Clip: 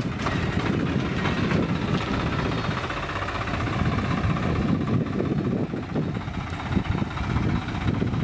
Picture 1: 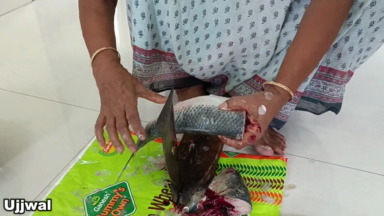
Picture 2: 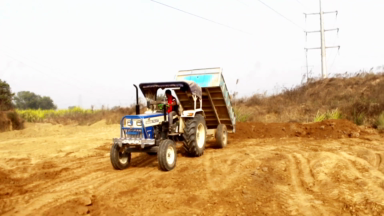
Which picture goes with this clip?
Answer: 2